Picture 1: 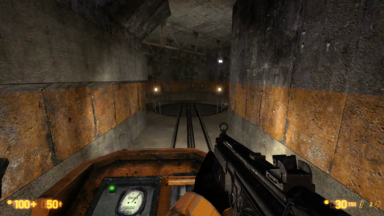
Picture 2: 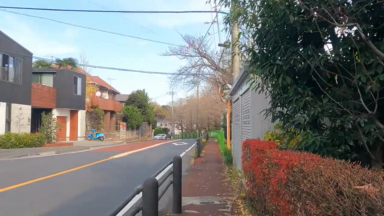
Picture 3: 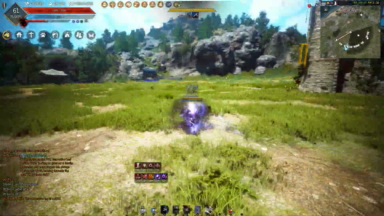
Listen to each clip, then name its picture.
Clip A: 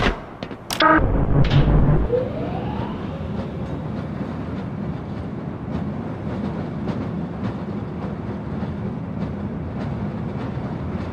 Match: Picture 1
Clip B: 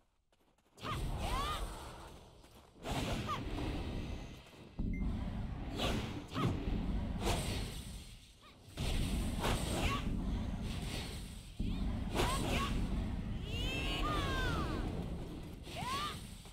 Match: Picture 3